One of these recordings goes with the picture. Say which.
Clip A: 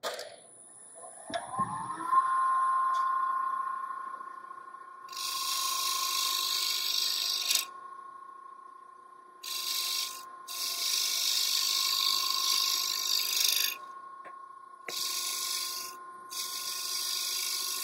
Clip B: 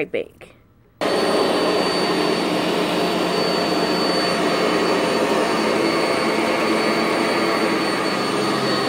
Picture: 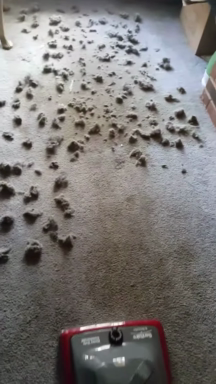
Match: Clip B